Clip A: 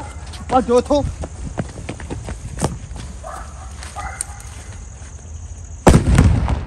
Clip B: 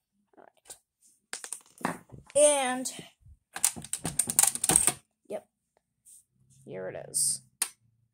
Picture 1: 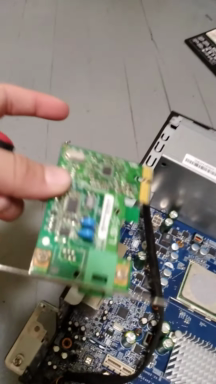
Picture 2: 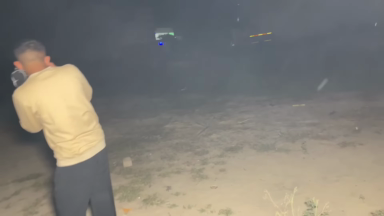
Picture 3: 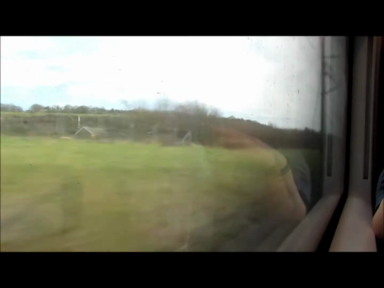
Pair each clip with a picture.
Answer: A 2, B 1